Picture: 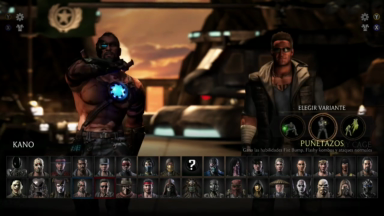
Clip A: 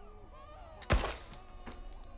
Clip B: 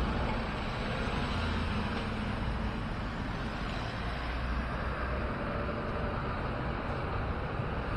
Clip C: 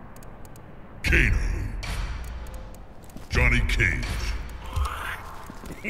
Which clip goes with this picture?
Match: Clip C